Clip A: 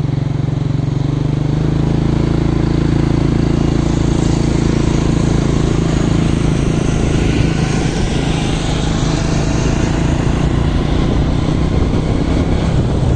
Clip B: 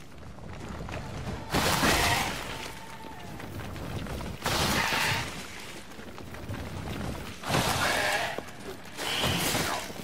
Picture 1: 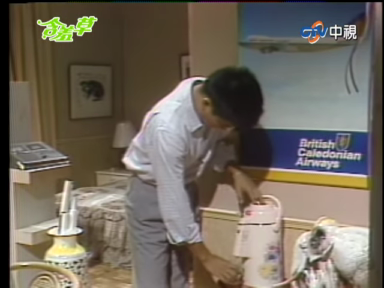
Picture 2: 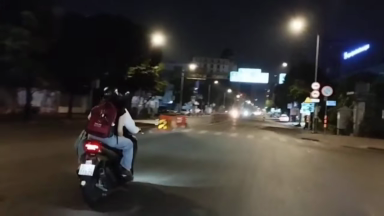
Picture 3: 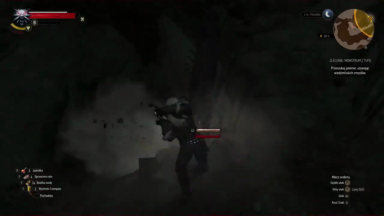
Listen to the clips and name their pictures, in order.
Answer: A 2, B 3